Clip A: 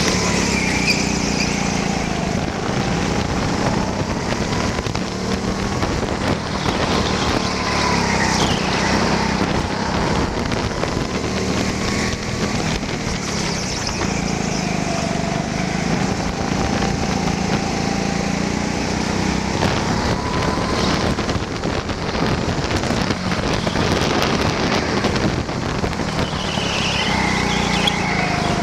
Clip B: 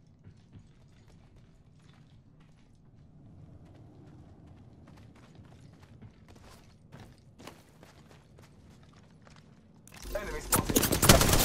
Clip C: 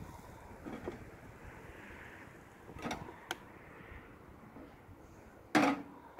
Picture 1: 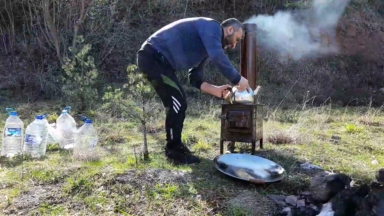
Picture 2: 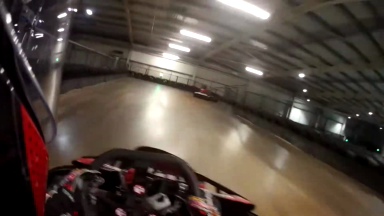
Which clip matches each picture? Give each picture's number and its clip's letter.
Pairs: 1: C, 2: A